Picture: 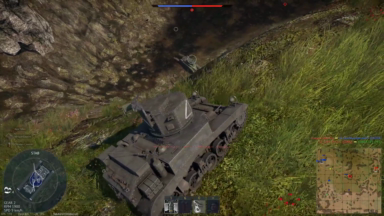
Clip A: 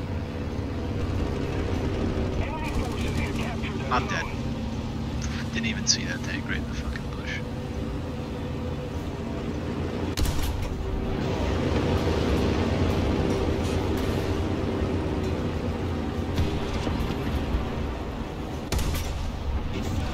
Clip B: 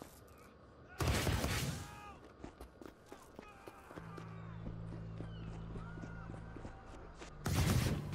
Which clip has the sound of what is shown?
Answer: A